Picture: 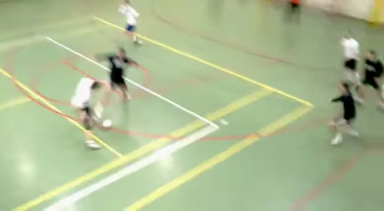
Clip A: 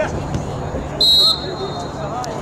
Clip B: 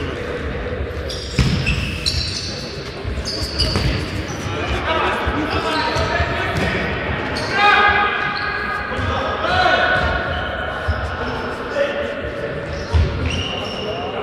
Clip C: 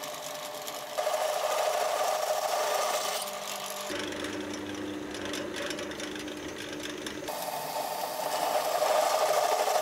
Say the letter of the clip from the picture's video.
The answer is B